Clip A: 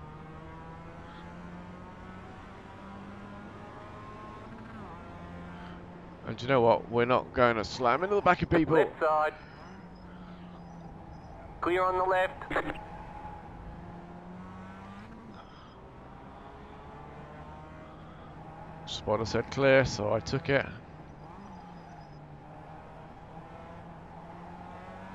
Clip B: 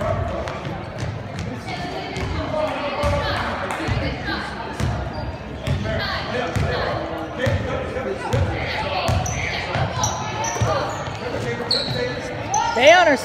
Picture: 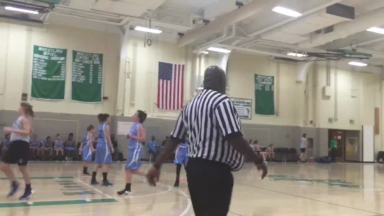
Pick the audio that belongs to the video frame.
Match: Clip B